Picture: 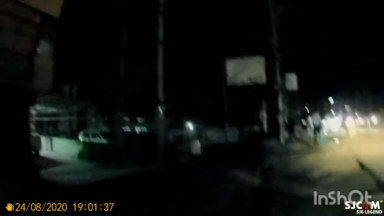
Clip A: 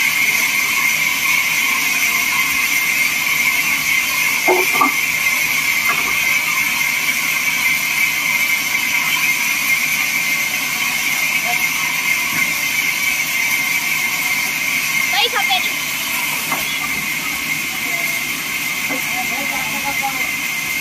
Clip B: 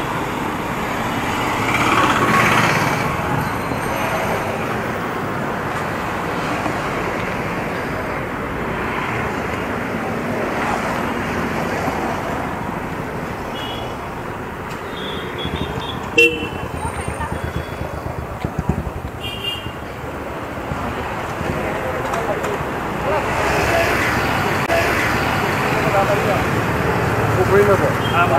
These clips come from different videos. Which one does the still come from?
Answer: B